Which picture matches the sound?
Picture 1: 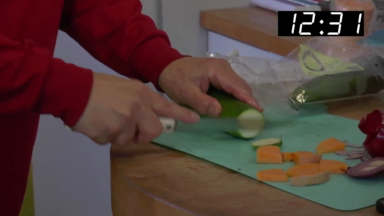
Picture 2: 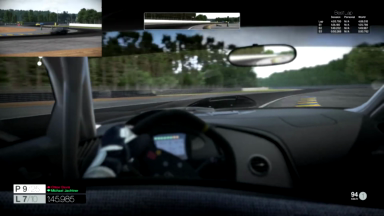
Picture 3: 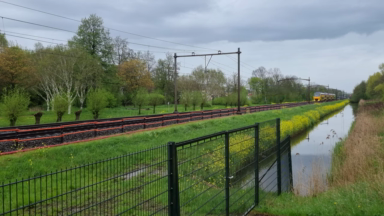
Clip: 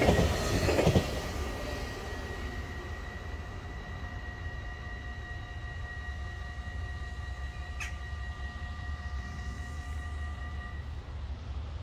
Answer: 3